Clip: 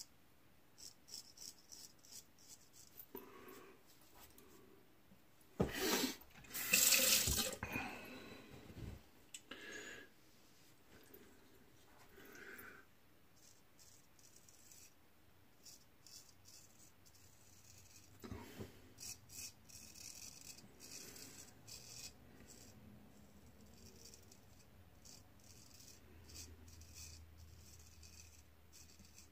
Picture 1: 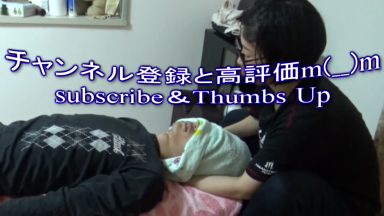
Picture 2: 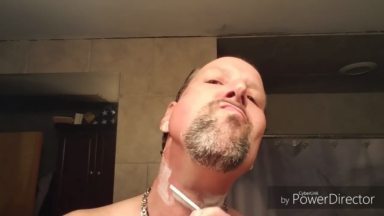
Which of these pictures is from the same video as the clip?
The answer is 2